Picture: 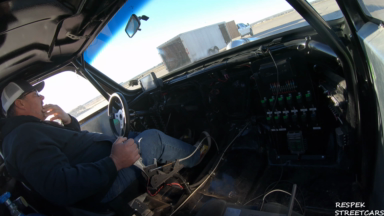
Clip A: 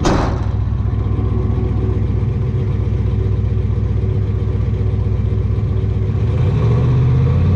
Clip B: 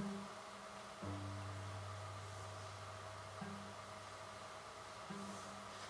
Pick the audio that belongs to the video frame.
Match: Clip A